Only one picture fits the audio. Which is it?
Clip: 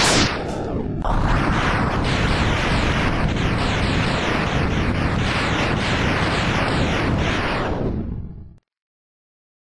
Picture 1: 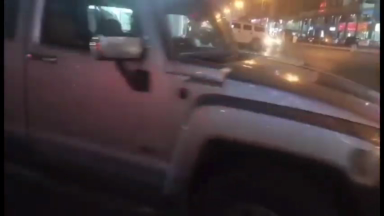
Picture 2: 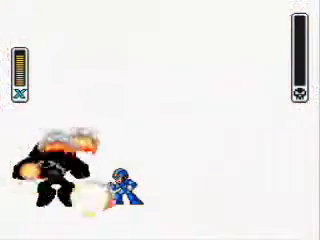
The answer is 2